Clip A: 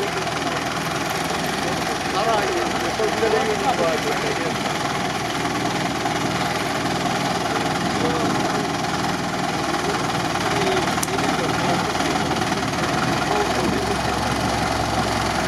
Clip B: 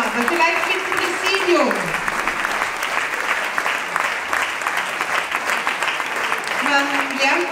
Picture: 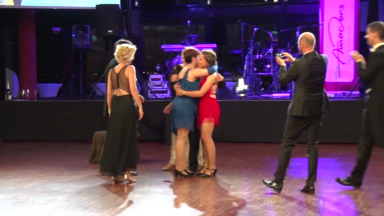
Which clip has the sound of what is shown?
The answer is B